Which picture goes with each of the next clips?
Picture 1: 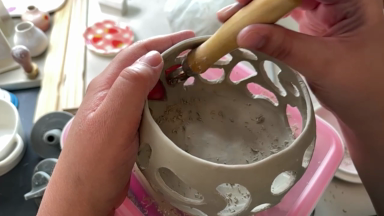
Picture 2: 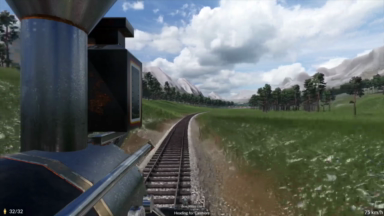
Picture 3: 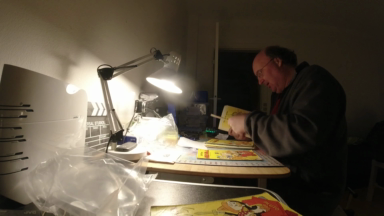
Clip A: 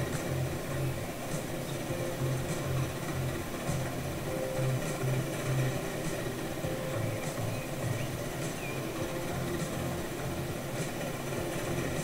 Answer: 2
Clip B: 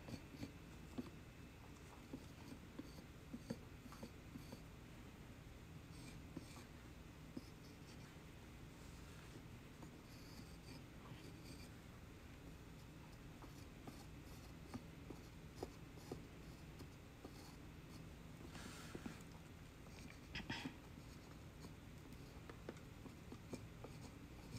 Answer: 1